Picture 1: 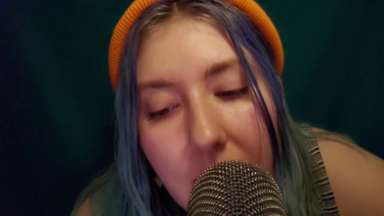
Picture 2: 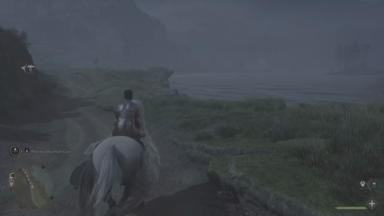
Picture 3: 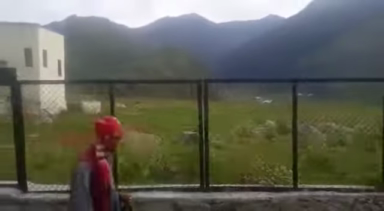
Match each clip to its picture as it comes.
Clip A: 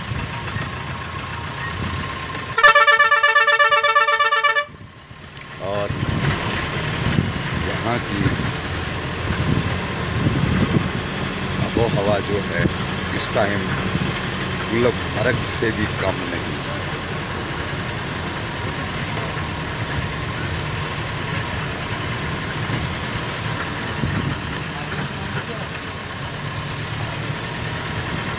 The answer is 3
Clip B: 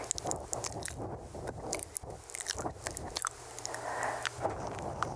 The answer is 1